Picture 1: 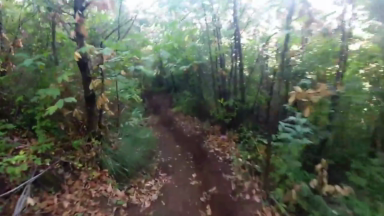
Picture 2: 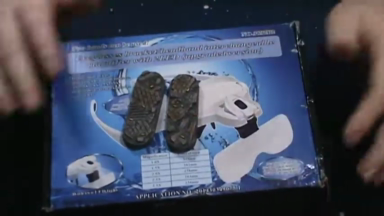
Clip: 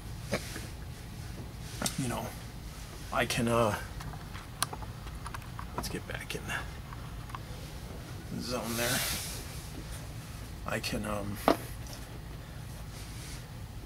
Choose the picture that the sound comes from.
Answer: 2